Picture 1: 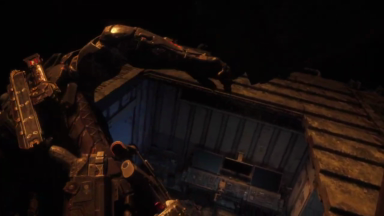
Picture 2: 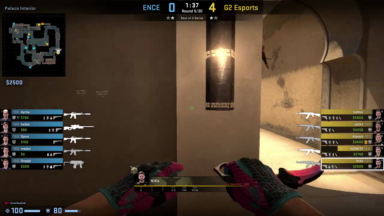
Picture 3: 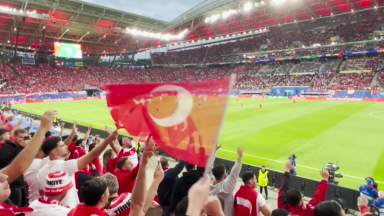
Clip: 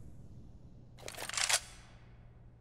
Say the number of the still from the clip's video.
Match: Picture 2